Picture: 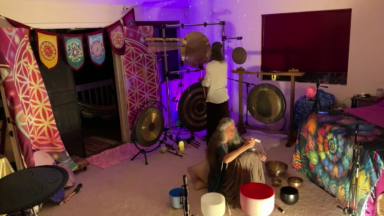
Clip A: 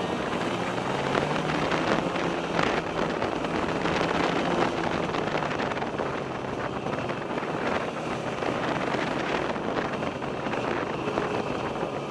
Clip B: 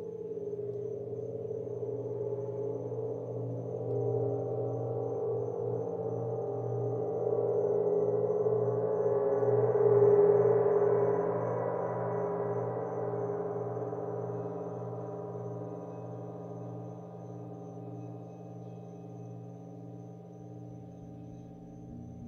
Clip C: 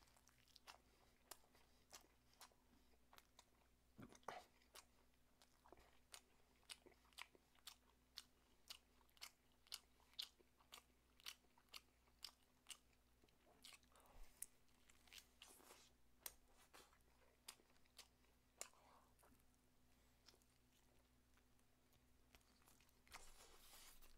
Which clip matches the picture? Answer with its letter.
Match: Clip B